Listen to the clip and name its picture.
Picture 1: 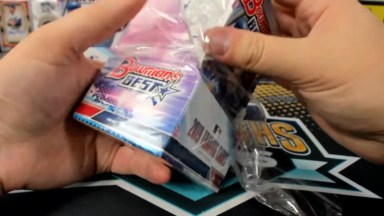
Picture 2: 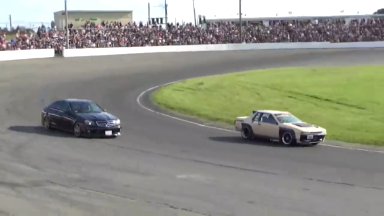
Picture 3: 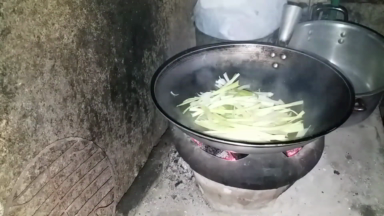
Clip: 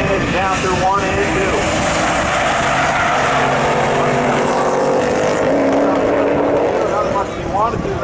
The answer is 2